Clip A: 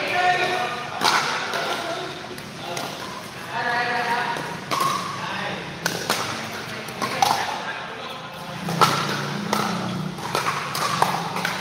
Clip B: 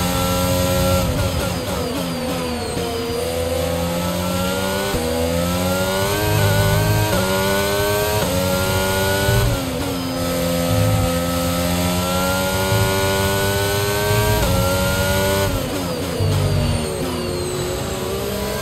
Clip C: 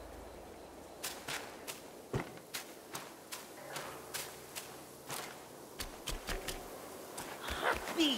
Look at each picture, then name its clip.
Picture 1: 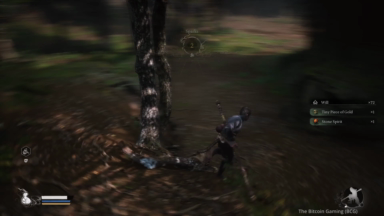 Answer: C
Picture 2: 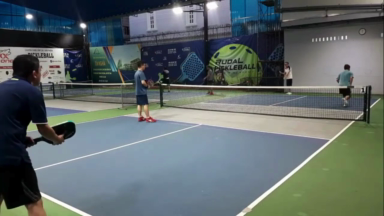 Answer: A